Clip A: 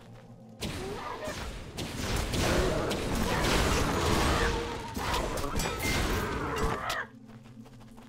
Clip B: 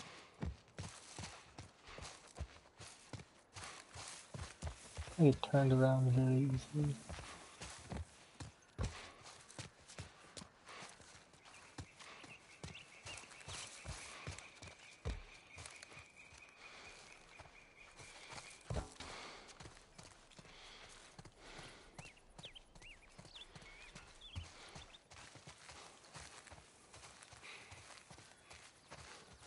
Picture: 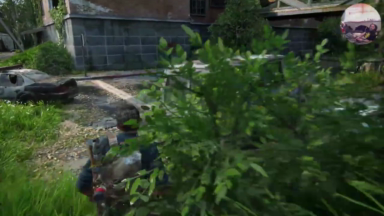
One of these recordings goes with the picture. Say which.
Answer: B